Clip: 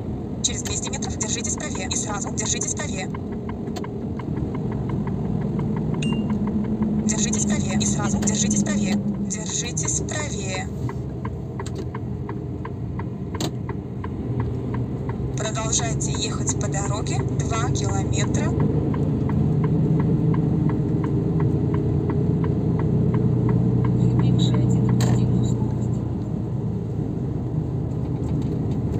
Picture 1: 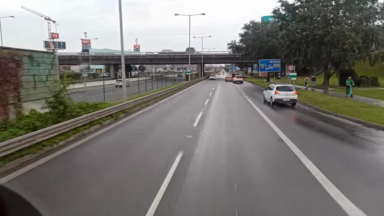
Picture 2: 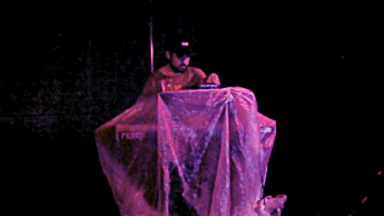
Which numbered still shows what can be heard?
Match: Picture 1